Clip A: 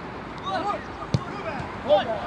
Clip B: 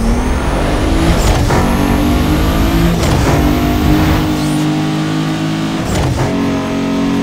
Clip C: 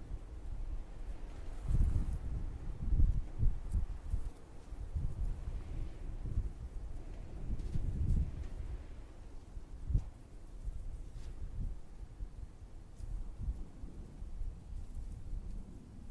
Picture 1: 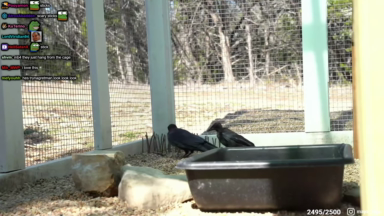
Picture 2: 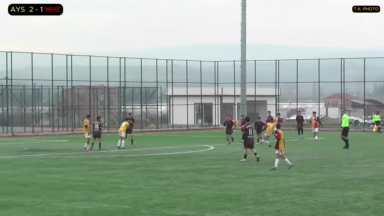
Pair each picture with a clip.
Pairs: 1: C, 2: A